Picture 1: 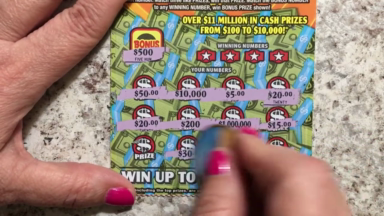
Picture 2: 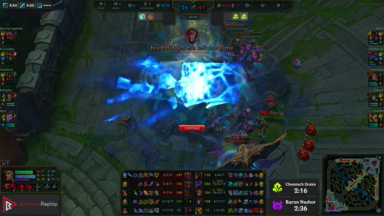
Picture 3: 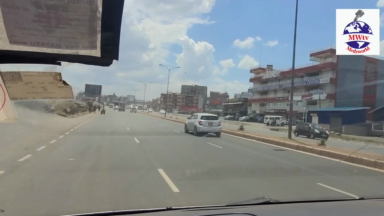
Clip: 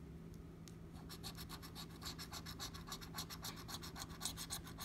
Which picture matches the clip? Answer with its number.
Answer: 1